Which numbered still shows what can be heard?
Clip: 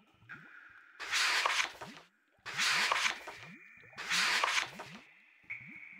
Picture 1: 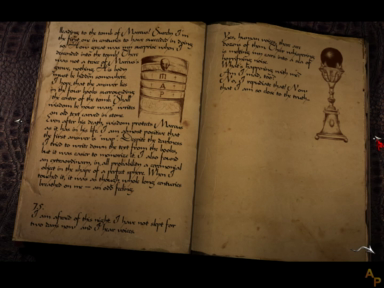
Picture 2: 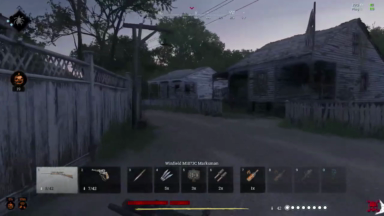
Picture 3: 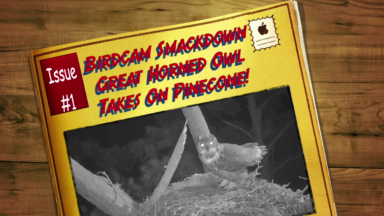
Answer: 1